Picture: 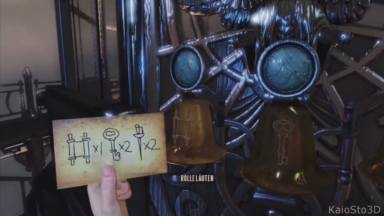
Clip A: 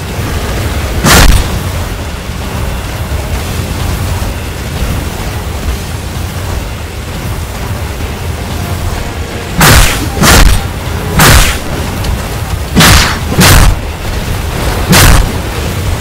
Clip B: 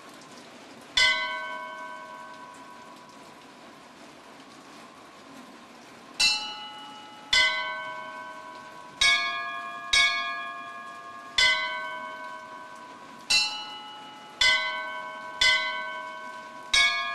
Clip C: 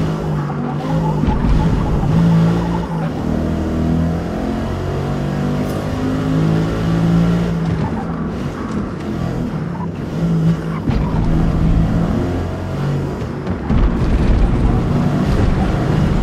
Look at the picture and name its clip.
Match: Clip B